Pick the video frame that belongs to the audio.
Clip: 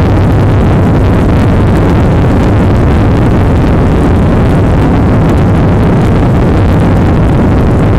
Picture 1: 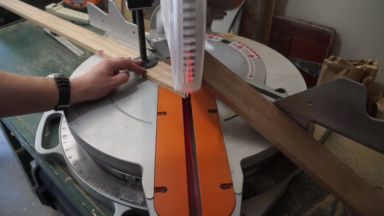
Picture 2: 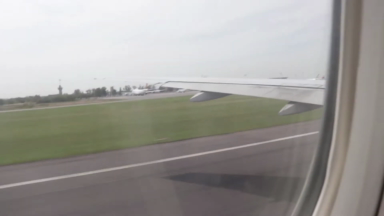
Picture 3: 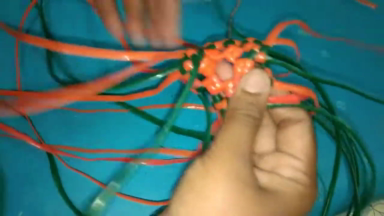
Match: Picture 2